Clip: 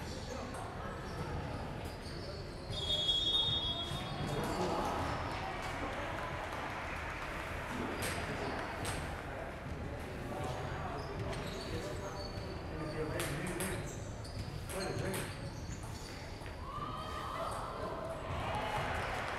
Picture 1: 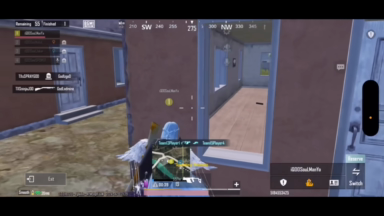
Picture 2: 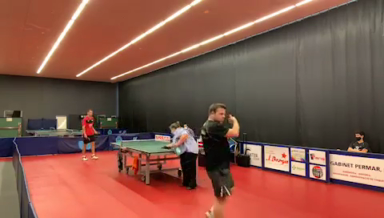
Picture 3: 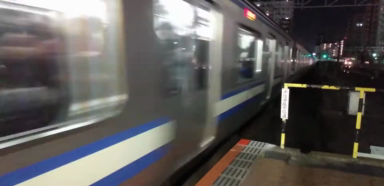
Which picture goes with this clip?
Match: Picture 2